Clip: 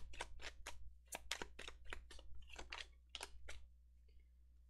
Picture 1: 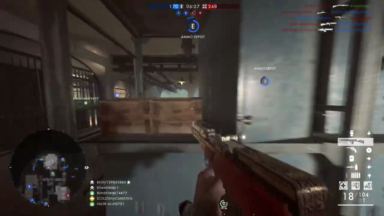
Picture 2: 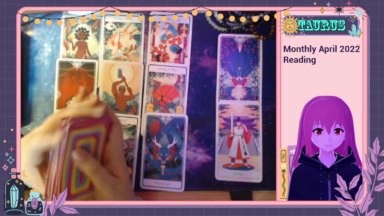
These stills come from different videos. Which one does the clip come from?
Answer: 2